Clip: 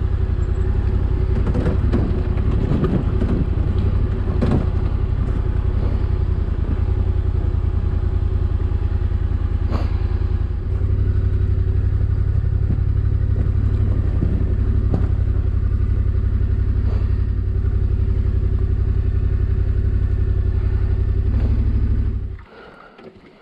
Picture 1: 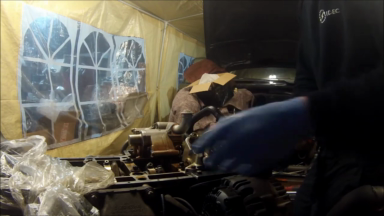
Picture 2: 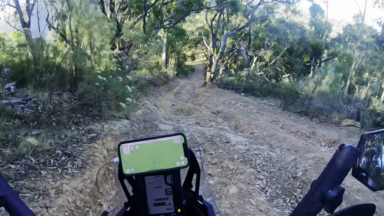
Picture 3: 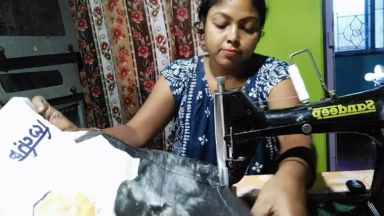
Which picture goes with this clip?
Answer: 2